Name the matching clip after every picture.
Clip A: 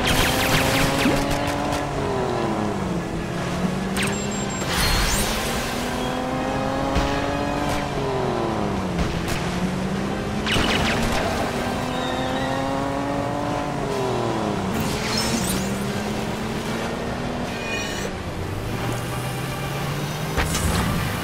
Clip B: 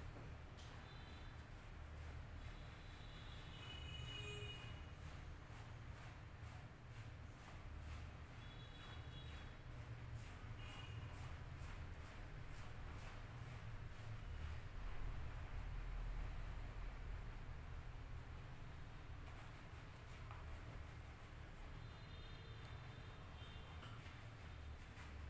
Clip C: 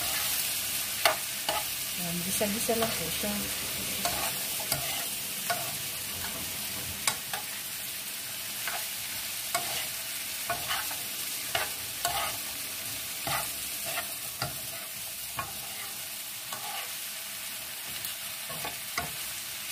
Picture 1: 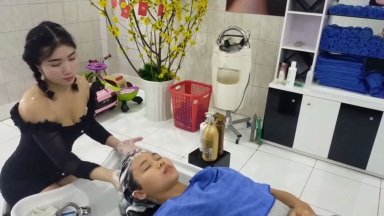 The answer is B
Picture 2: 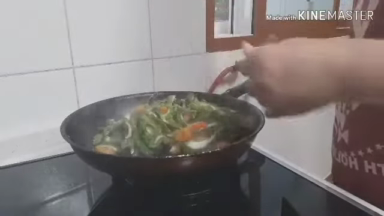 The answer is C